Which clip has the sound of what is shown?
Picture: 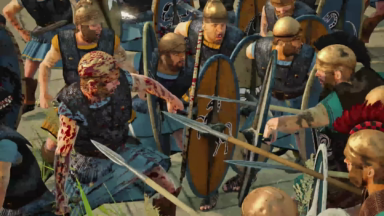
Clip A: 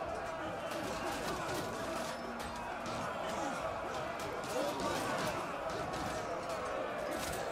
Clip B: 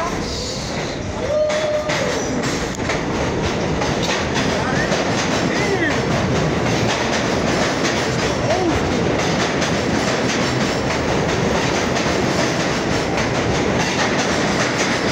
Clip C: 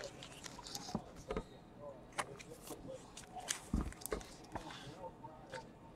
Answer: A